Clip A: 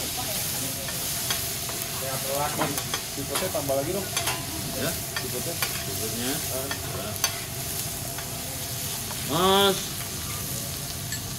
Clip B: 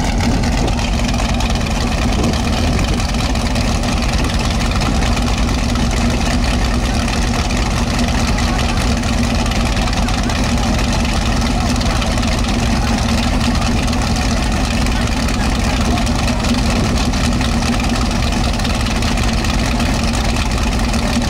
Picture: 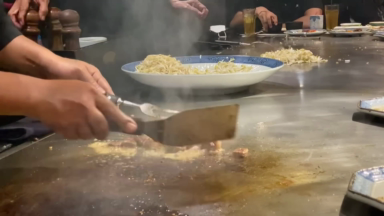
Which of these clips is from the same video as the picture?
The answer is A